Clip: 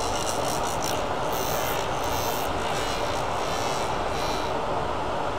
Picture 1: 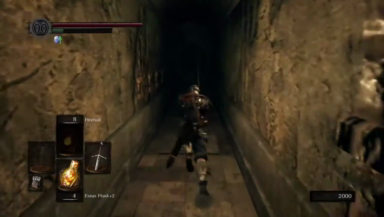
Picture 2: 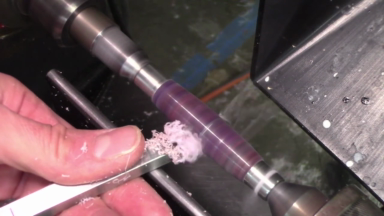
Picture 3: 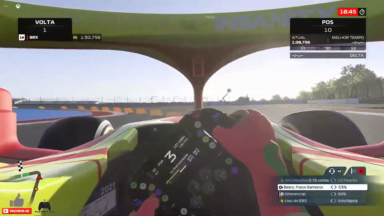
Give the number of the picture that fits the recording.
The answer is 2